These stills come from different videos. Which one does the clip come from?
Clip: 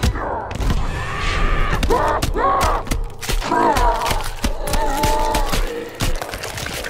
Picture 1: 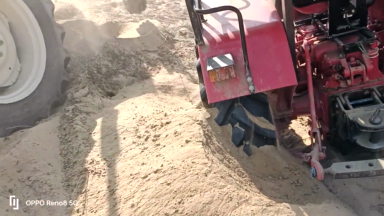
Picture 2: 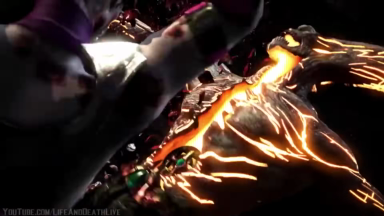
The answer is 2